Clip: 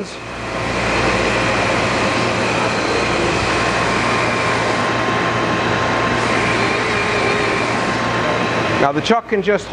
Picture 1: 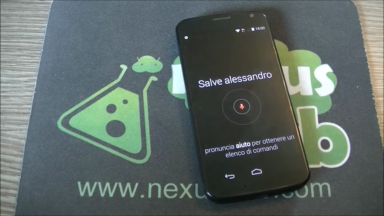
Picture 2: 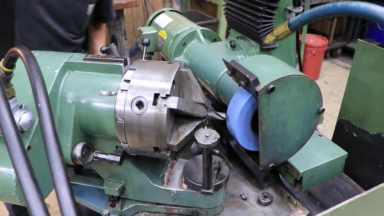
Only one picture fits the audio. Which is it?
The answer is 2